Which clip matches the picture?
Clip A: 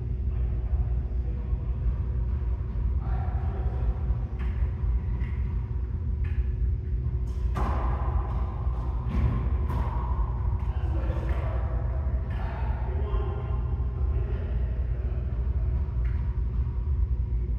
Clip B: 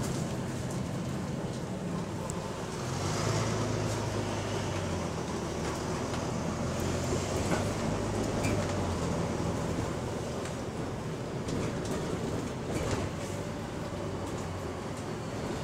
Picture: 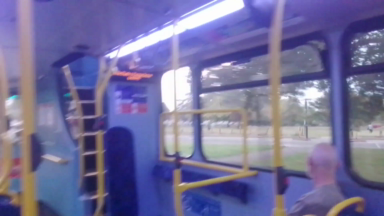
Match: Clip B